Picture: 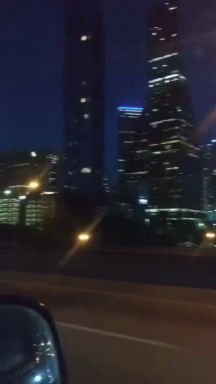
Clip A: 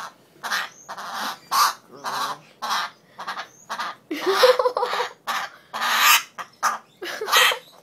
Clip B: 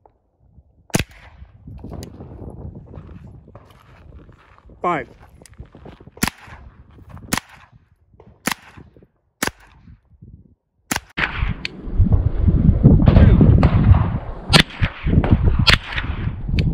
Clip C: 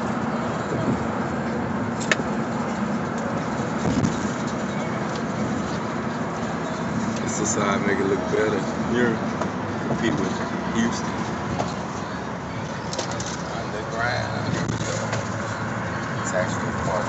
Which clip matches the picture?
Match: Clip C